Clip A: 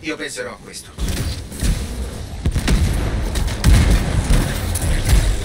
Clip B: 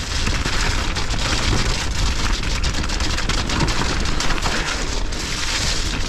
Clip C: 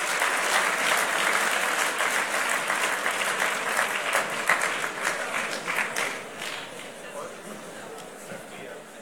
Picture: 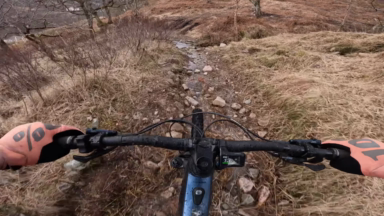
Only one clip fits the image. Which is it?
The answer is B